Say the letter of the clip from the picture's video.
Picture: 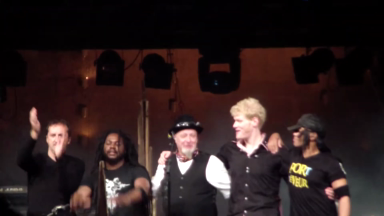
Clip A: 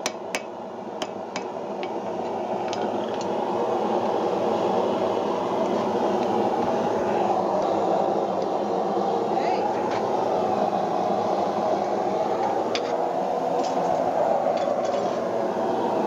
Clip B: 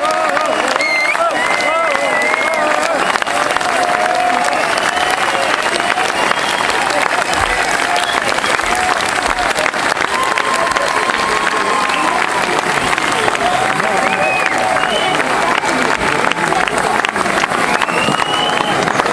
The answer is B